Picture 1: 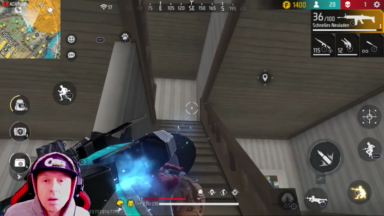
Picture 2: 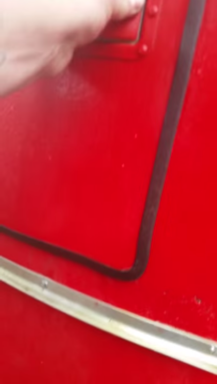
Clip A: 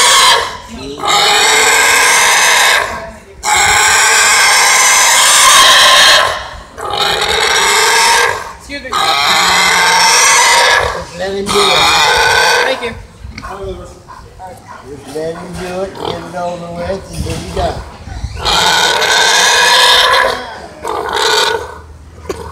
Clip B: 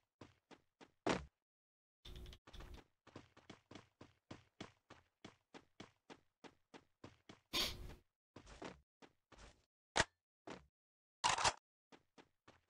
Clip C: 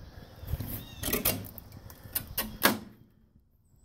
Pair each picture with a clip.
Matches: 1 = B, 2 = C